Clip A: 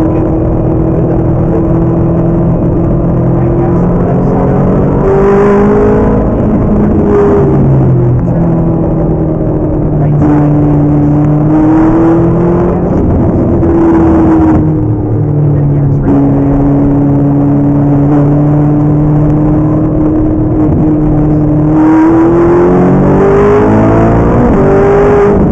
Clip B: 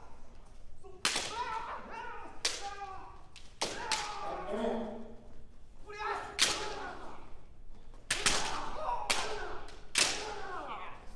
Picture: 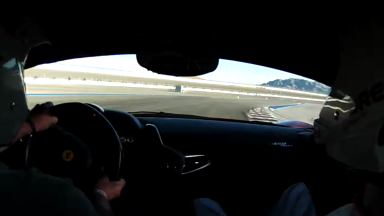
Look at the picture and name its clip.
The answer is A